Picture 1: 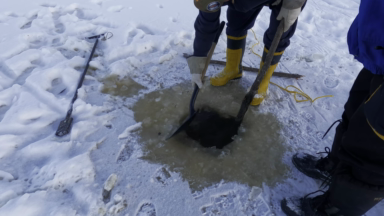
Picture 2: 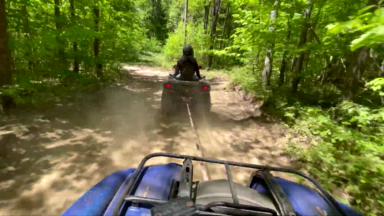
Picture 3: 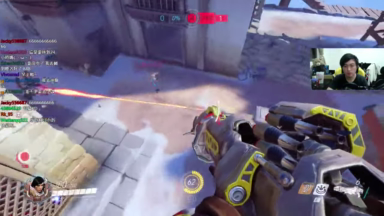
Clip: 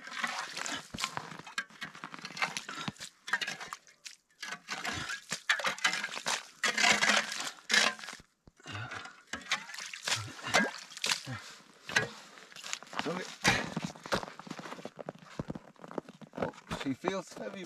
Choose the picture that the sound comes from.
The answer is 1